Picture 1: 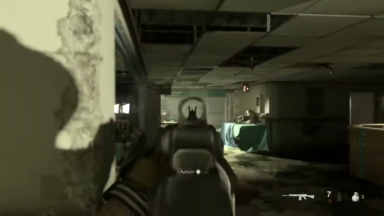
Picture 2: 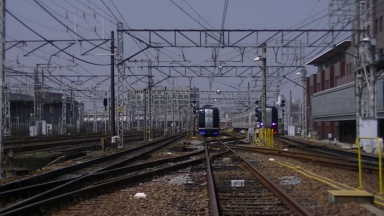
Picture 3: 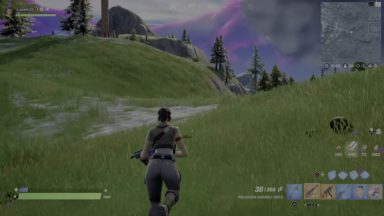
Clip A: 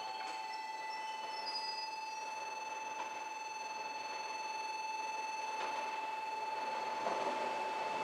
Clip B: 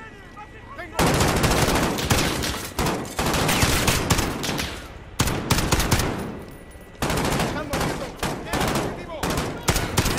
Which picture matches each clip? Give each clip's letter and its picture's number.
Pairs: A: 2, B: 1